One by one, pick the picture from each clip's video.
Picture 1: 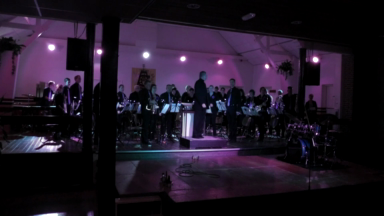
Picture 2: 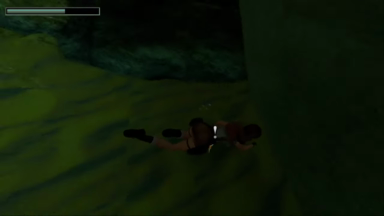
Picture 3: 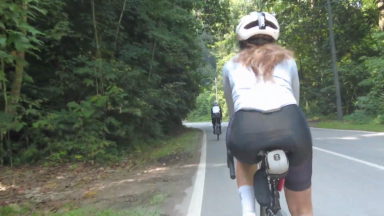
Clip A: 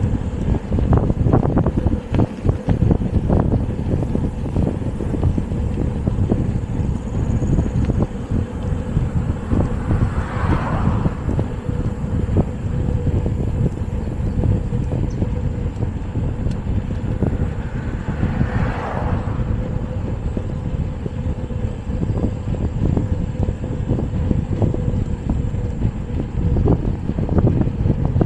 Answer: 3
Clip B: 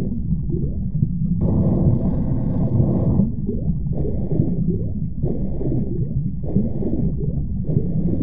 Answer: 2